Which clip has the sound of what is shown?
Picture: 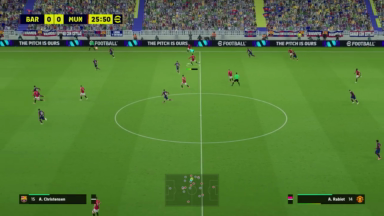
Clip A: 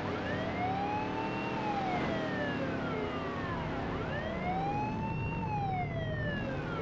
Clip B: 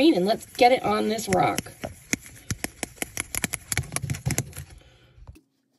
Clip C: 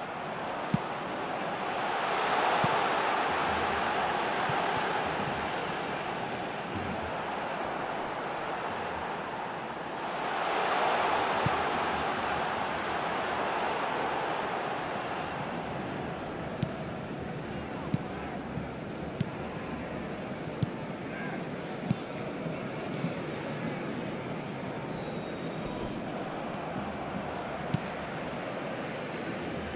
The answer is C